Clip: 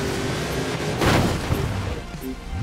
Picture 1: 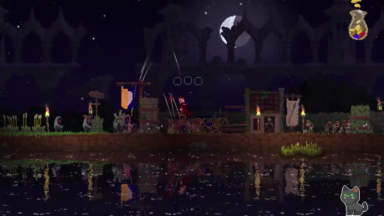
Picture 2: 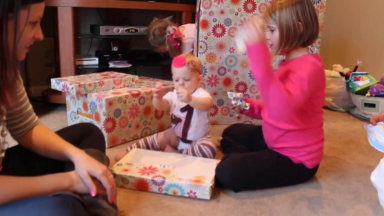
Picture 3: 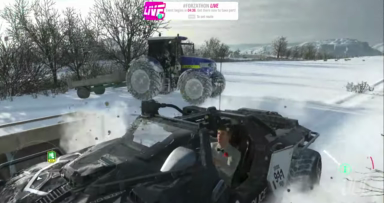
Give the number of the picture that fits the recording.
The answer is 3